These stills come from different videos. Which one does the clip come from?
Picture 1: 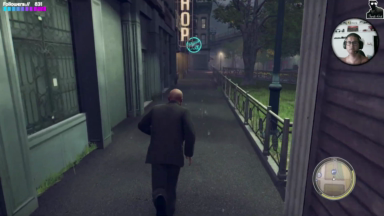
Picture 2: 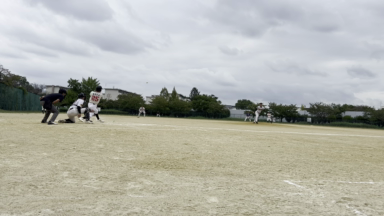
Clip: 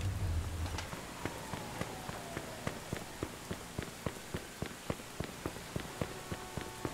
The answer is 1